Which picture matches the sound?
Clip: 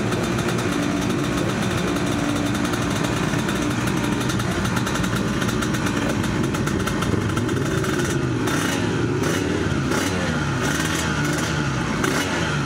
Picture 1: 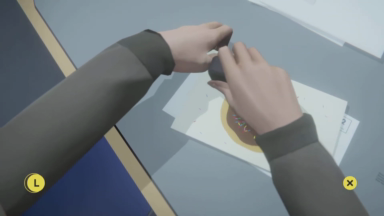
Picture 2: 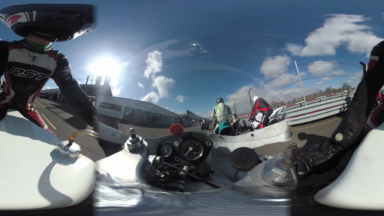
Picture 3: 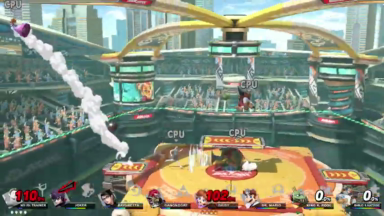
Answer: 2